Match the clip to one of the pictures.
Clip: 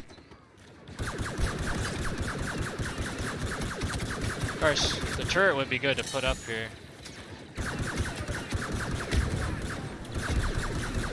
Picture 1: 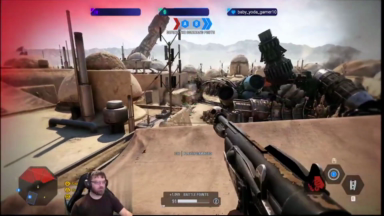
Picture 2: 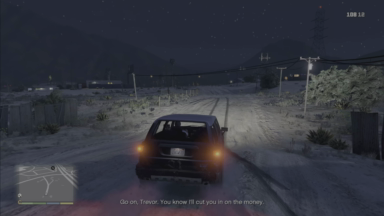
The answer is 1